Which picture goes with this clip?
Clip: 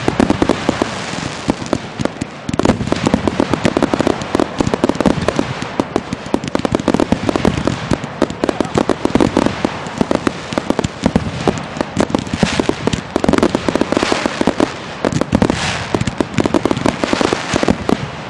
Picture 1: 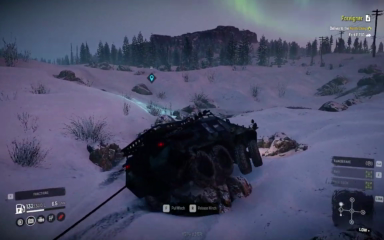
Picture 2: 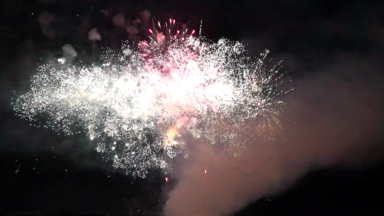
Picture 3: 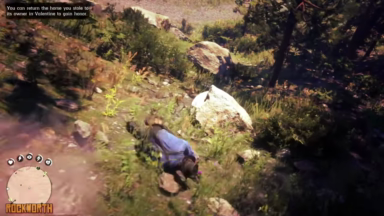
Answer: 2